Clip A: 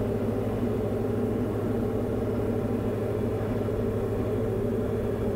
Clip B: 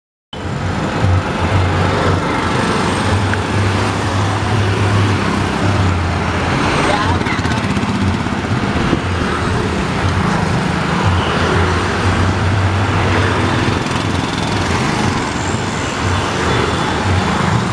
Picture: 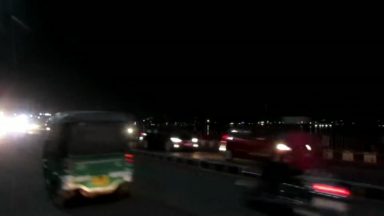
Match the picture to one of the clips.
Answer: B